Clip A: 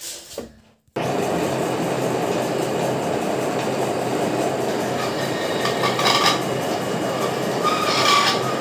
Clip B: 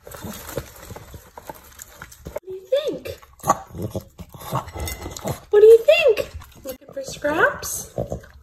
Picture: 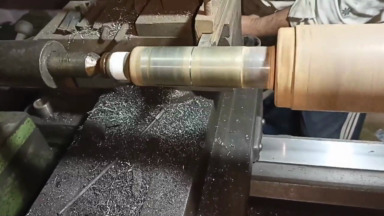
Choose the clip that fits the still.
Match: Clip A